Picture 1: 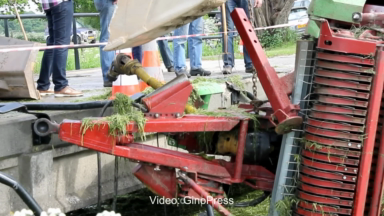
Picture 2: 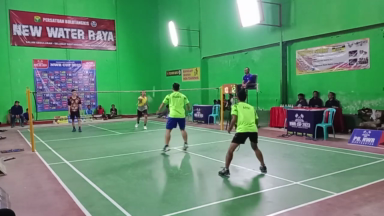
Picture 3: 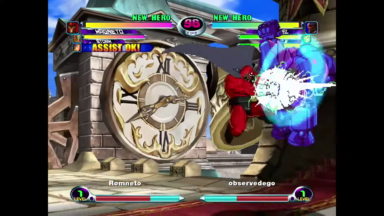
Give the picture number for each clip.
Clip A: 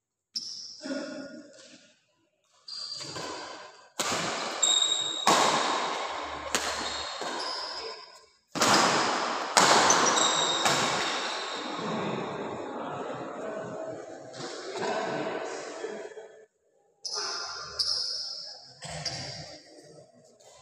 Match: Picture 2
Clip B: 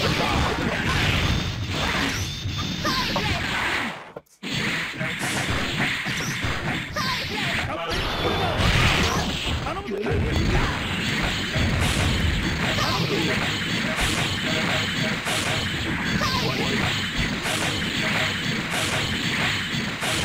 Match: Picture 3